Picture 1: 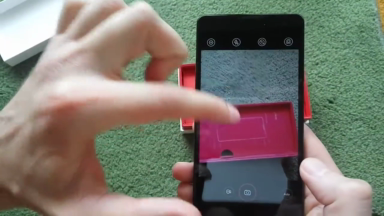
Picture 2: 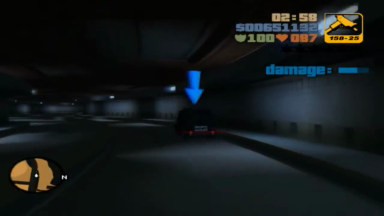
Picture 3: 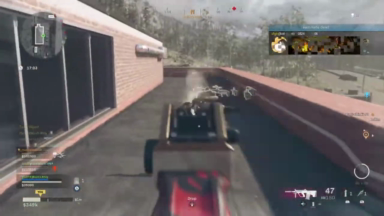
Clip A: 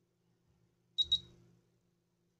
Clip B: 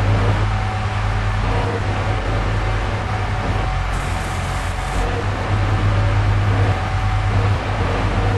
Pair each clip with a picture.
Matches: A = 1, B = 2